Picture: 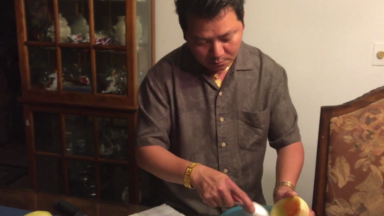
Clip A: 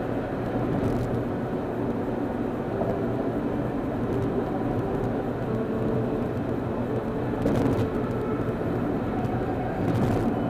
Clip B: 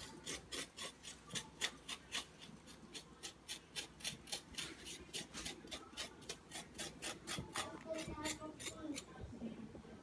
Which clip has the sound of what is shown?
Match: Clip B